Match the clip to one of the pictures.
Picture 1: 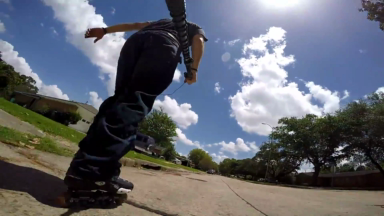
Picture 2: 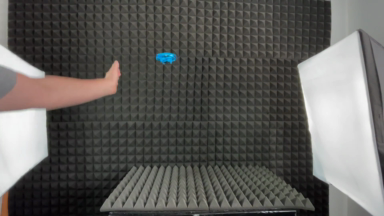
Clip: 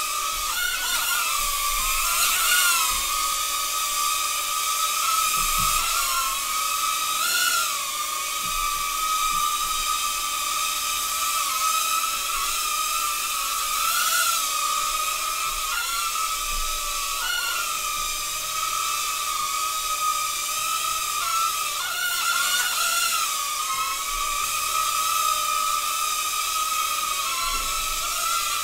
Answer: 2